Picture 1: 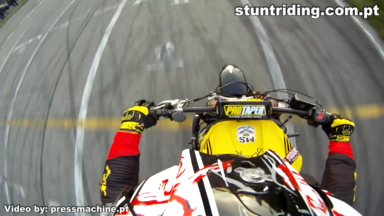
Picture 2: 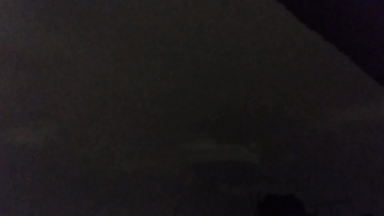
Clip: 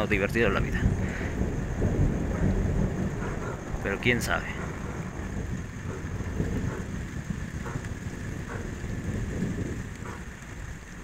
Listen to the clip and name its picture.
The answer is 2